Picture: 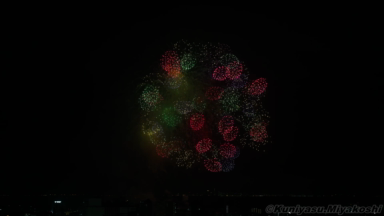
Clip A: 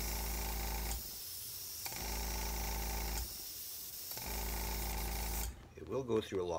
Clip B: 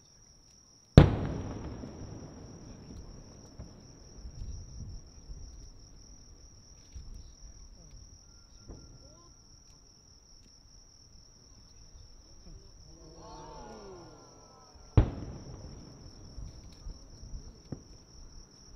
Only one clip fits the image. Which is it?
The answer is B